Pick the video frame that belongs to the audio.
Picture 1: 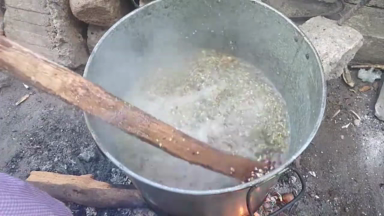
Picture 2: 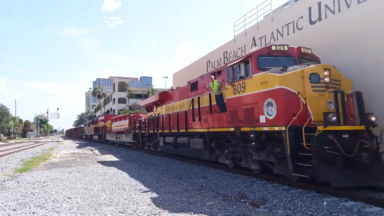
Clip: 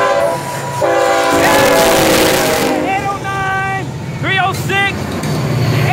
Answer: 2